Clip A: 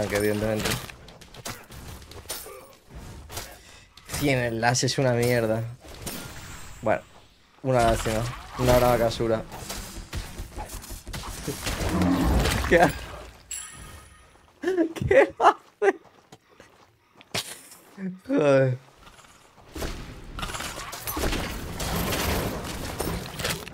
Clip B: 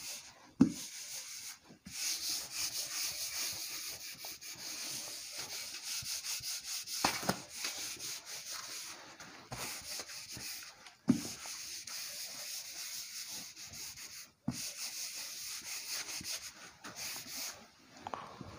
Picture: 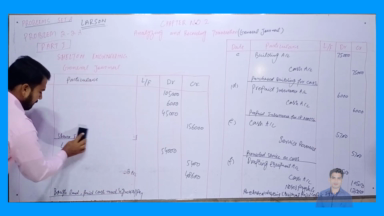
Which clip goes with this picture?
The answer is B